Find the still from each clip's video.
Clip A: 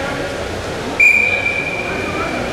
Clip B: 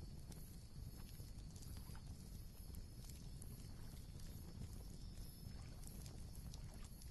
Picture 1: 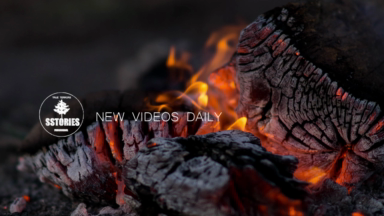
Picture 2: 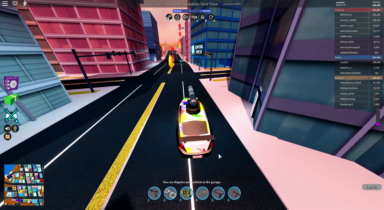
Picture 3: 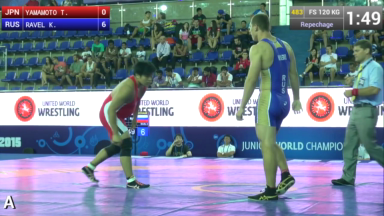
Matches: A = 3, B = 1